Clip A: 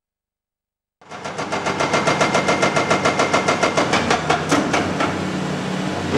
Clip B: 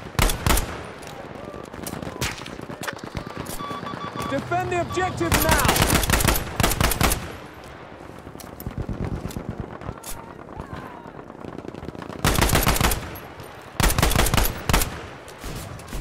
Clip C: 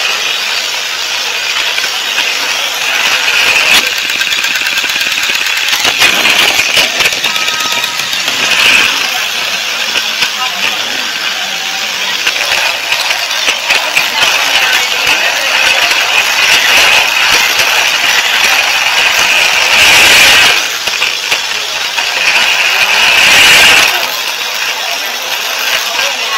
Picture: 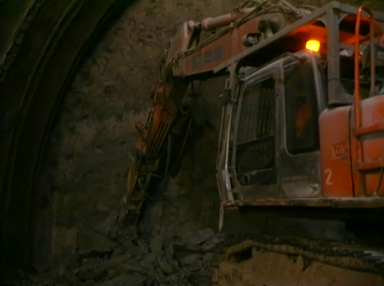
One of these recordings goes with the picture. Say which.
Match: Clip A